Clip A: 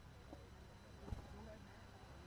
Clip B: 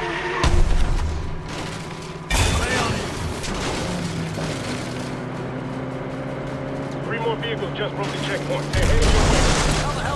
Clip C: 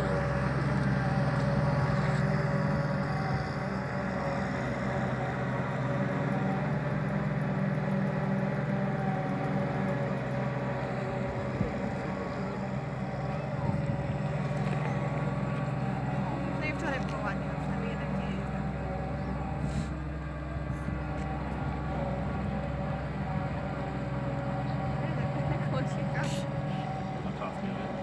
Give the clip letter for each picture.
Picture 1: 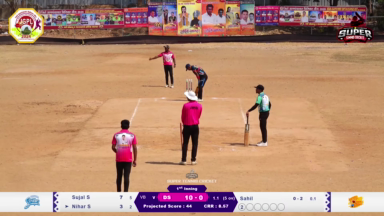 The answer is A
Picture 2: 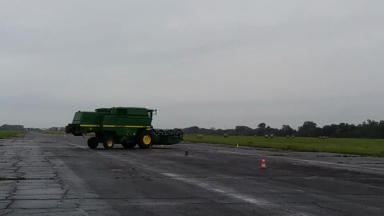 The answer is C